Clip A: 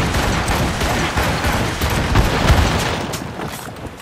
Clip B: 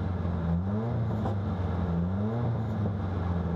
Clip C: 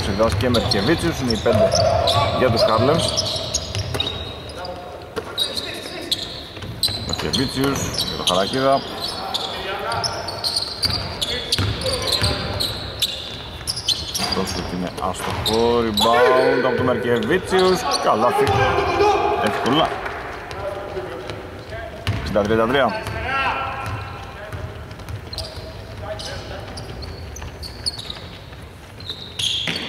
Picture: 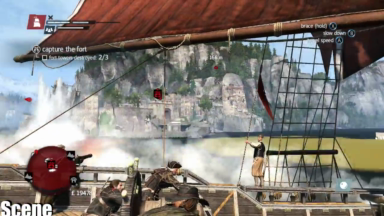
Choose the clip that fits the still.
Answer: A